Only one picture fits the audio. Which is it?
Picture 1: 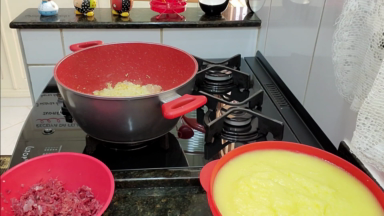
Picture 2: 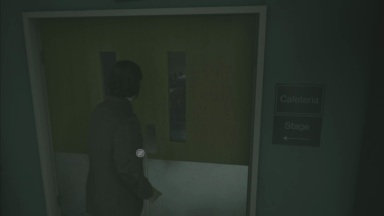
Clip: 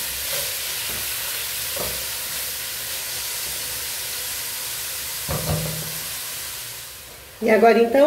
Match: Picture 1